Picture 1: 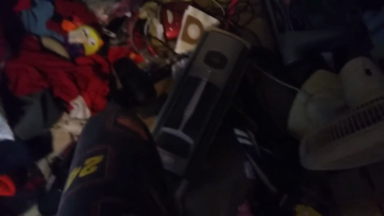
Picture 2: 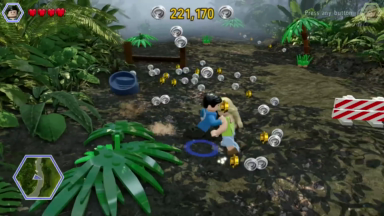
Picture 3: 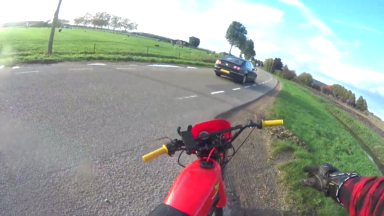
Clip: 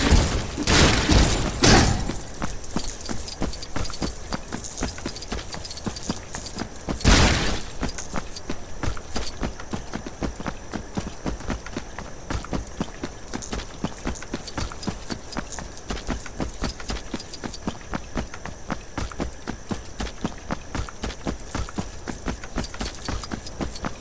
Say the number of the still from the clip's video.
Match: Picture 2